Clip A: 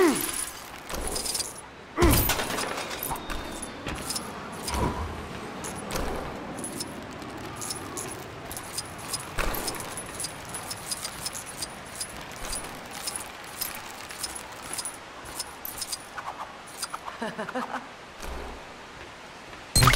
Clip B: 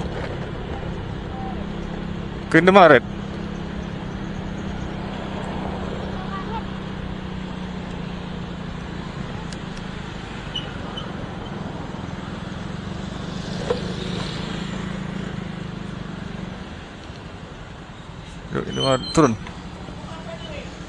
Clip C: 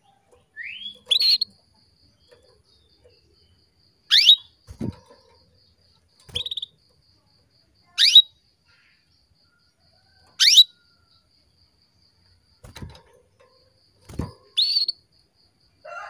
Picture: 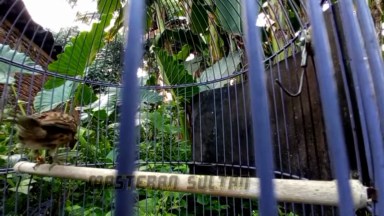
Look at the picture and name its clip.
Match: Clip C